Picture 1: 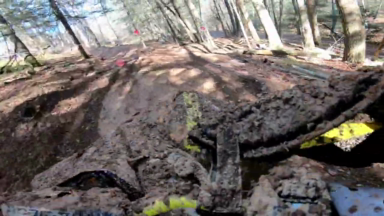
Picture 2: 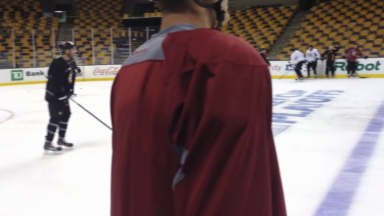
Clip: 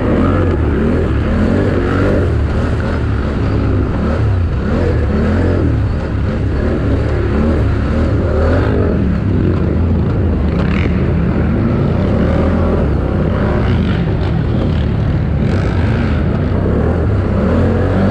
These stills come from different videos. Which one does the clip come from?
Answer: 1